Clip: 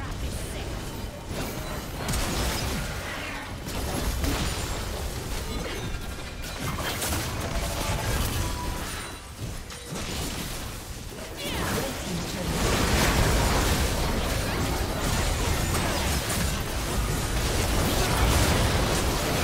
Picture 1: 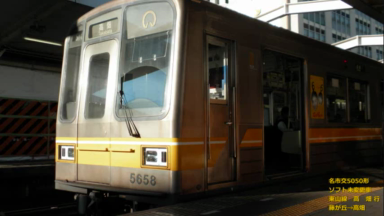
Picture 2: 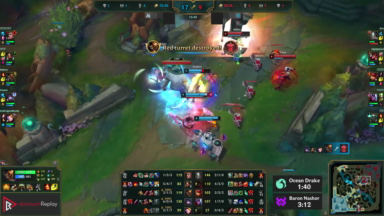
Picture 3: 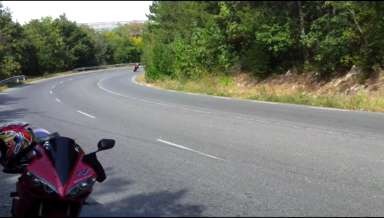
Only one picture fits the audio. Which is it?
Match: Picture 2